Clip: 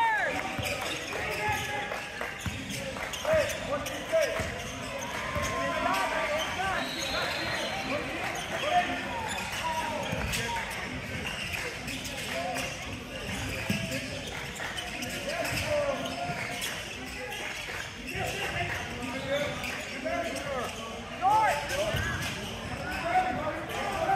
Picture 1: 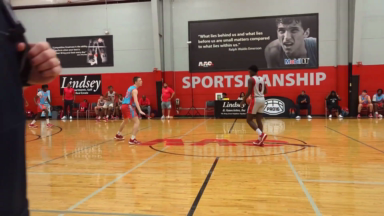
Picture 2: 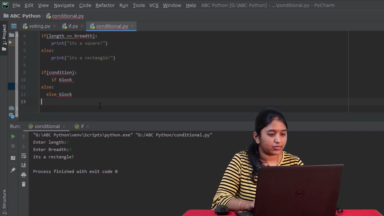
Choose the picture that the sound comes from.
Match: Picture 1